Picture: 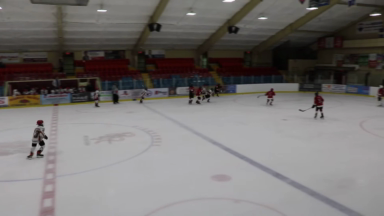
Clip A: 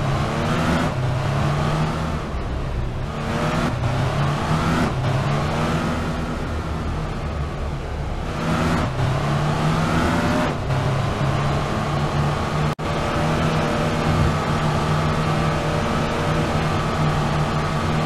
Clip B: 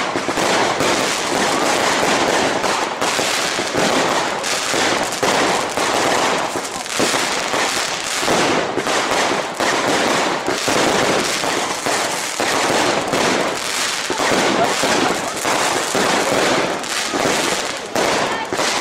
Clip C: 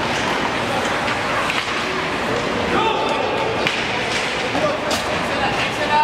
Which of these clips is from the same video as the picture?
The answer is C